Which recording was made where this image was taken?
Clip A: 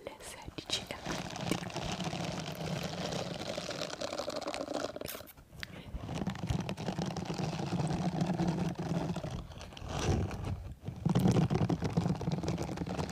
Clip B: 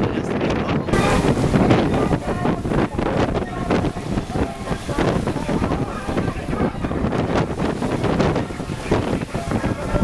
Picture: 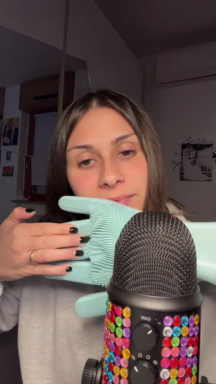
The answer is A